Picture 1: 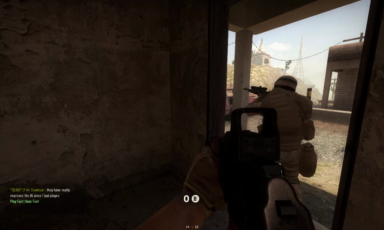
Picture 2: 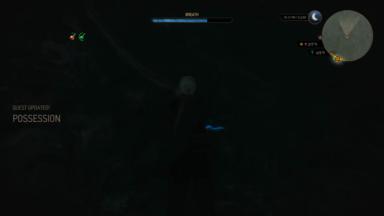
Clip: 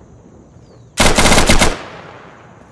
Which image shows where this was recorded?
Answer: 1